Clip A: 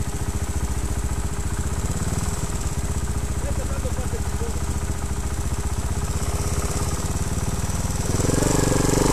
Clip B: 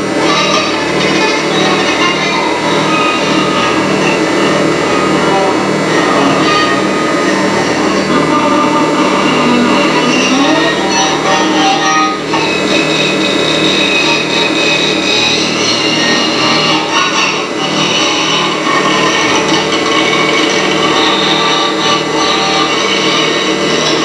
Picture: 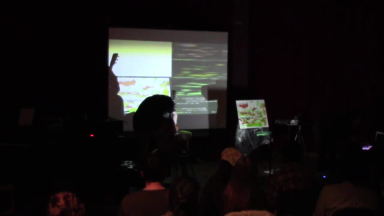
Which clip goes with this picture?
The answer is B